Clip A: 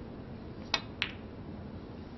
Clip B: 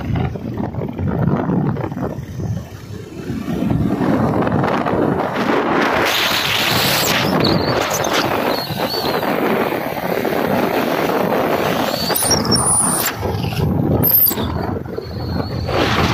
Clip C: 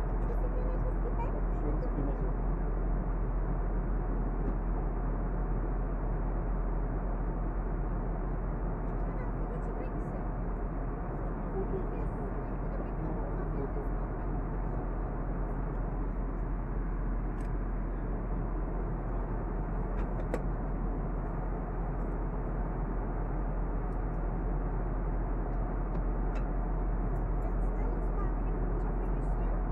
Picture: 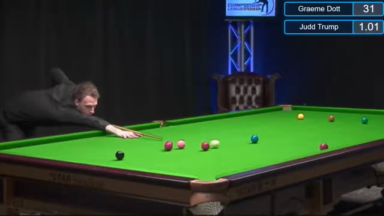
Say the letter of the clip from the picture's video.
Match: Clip A